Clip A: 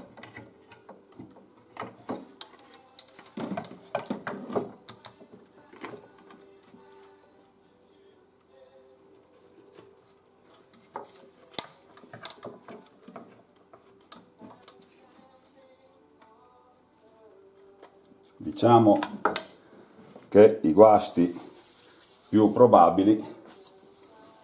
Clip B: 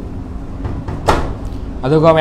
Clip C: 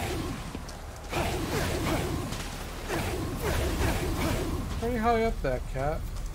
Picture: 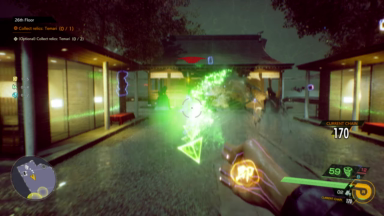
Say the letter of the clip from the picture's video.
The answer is C